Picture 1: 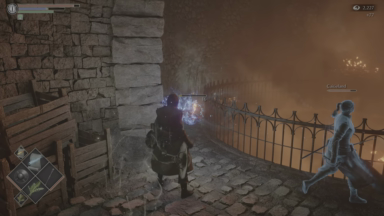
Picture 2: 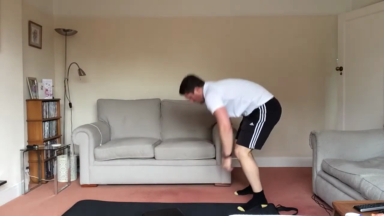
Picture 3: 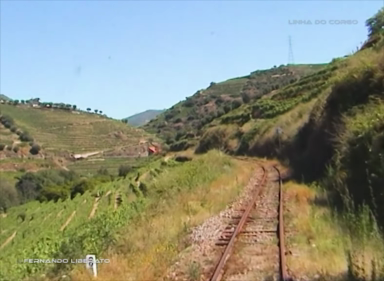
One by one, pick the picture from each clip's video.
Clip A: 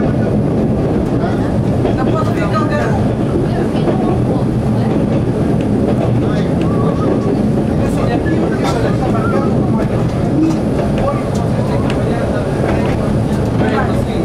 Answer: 3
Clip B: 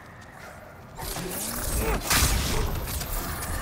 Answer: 1